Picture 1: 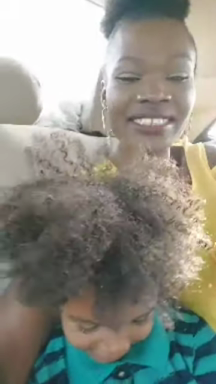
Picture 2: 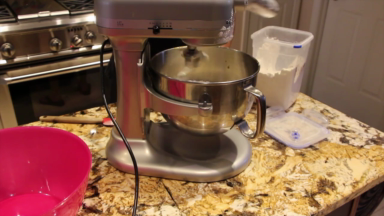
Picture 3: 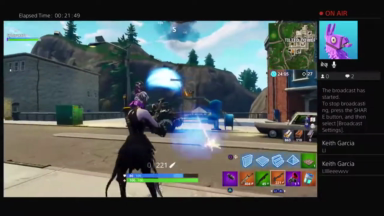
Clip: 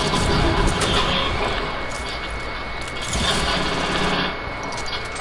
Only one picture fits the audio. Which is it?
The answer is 3